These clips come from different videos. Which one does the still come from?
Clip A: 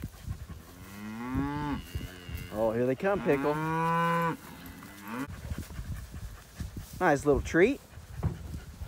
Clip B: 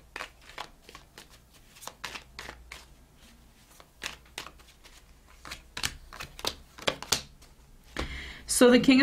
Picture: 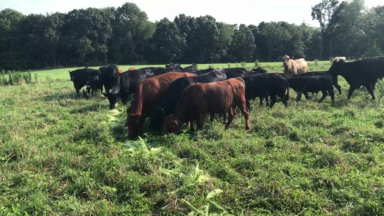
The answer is A